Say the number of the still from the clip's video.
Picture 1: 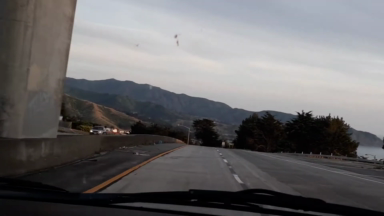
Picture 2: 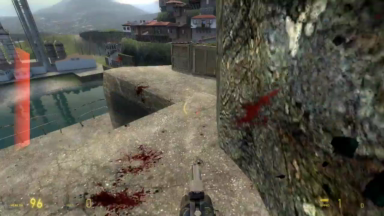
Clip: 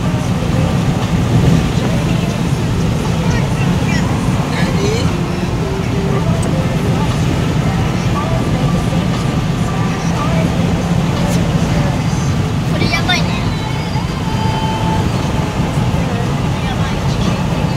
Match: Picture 1